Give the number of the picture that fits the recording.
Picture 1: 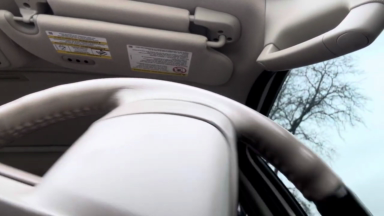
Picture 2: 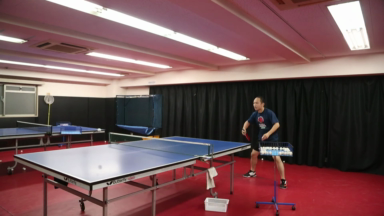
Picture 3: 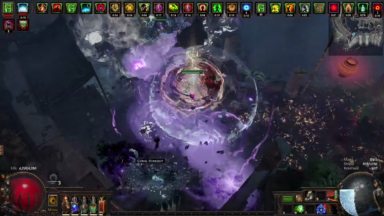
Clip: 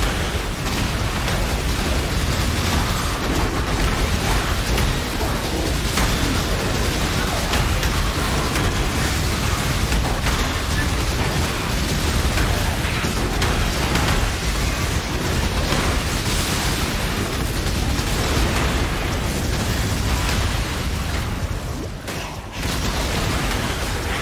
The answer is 3